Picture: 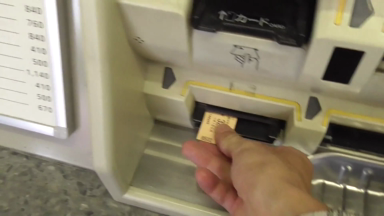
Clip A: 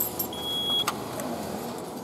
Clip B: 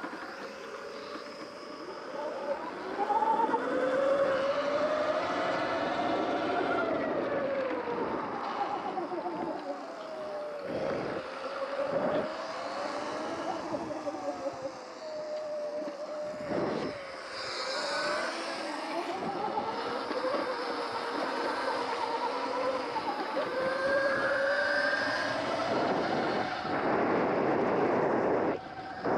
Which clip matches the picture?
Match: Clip A